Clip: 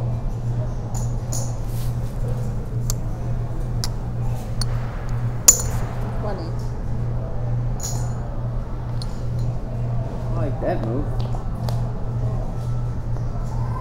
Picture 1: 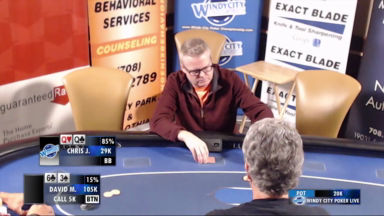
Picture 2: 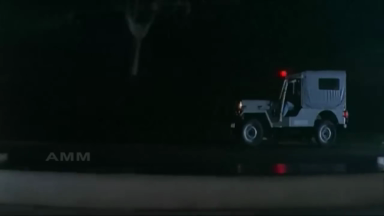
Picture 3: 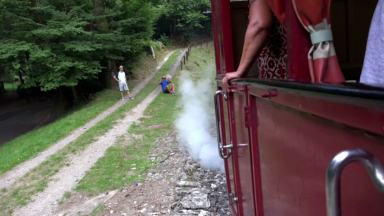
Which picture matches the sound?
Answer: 1